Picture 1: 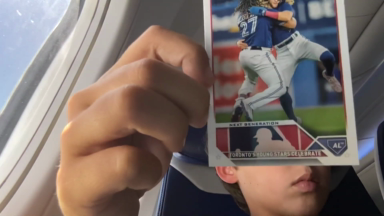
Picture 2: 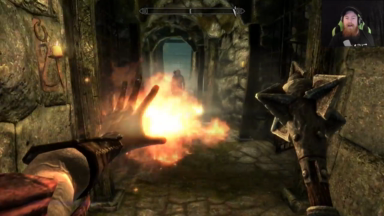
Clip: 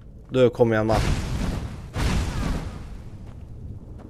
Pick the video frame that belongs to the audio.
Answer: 2